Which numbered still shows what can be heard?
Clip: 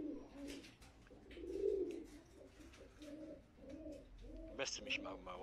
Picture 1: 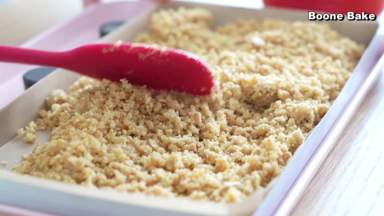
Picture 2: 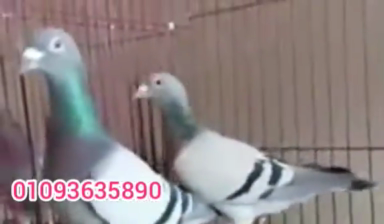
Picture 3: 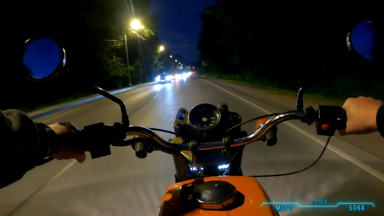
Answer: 2